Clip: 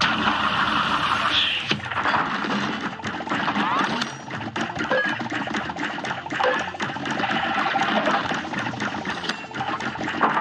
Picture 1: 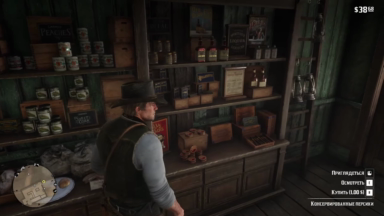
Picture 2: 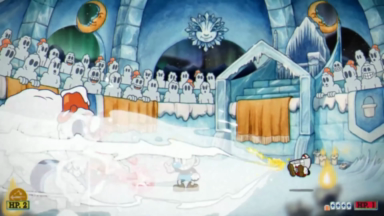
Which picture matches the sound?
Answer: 2